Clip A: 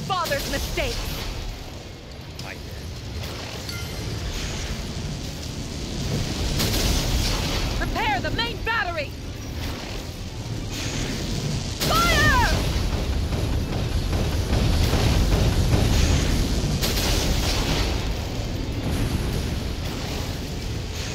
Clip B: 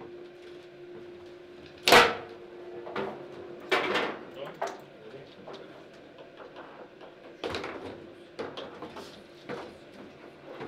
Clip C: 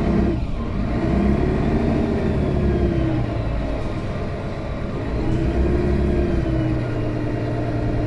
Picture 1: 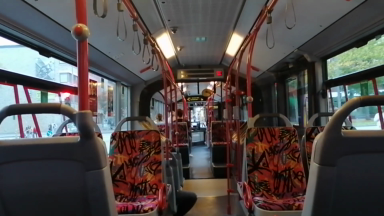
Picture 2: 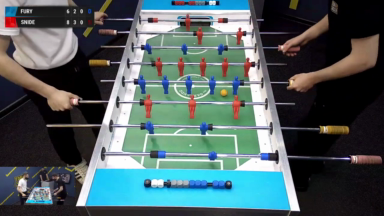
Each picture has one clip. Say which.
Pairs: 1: C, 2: B